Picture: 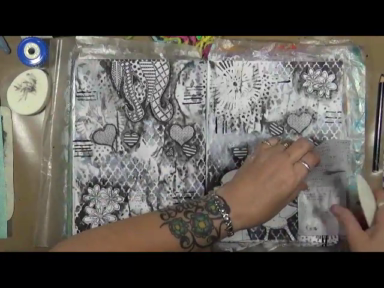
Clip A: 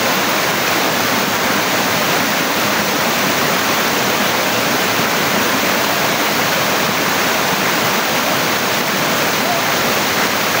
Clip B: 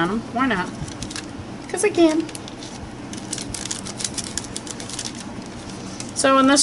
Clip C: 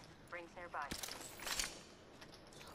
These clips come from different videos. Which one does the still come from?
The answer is B